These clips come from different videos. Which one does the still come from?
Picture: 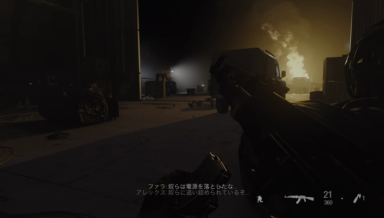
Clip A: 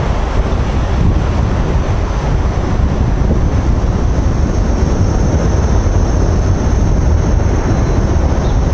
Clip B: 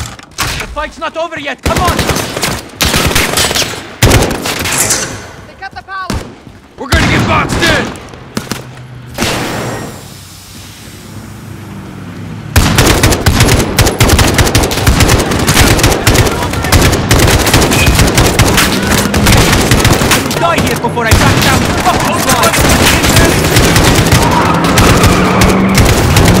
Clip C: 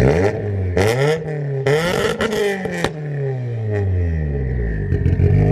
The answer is B